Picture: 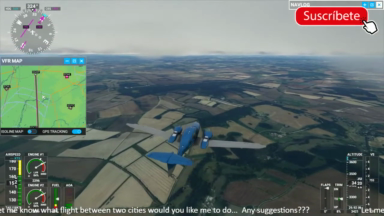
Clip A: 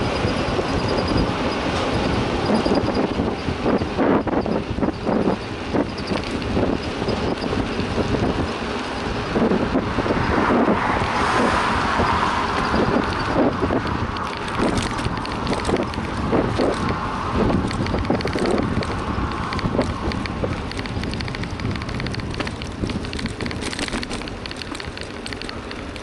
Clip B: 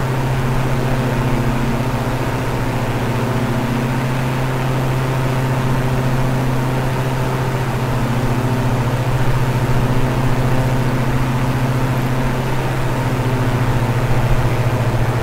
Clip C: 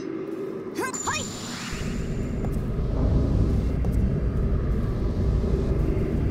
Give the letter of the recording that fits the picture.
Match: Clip B